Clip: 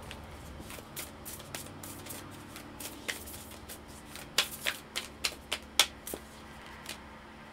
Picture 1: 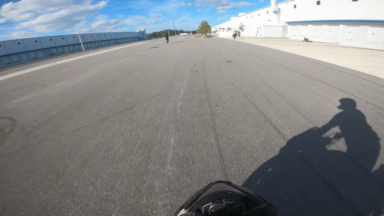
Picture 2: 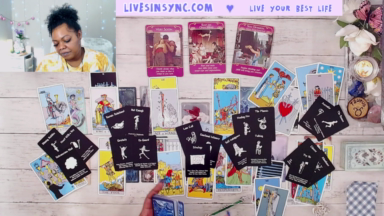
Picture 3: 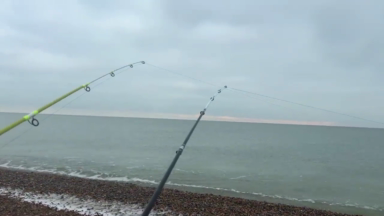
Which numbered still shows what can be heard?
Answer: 2